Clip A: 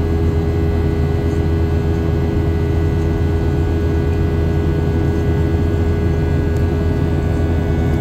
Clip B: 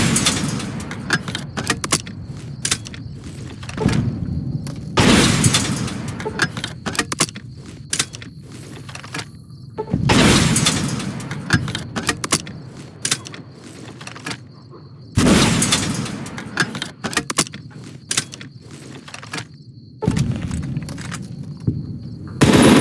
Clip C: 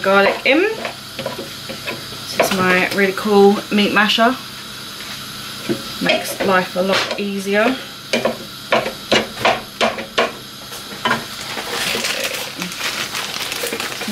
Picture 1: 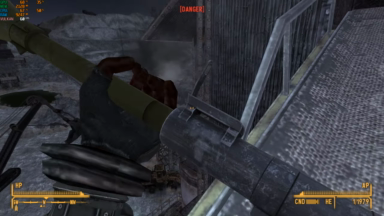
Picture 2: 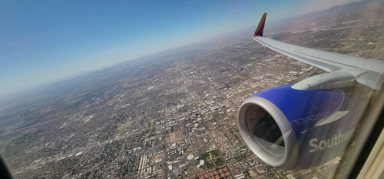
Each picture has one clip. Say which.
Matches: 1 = B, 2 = A